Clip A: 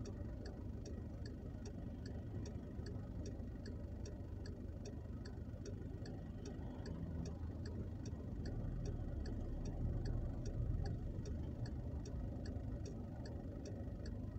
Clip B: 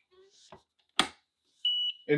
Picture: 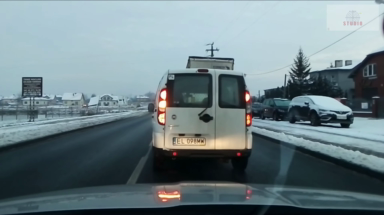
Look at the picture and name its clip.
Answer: A